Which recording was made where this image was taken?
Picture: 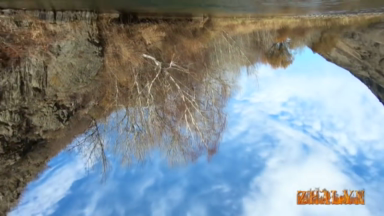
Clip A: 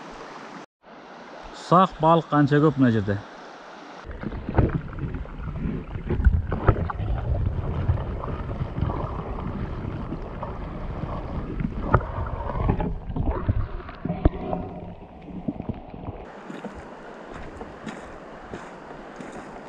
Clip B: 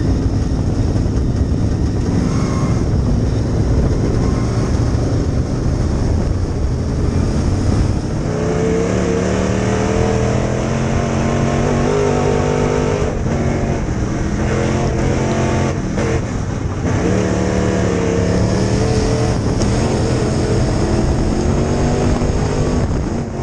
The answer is A